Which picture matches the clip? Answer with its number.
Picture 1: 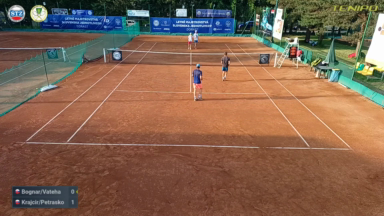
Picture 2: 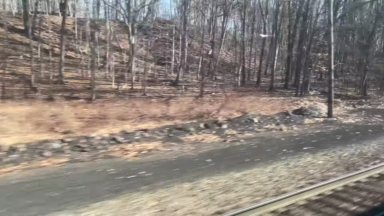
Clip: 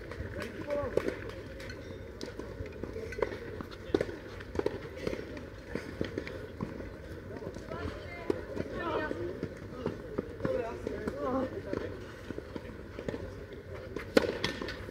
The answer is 1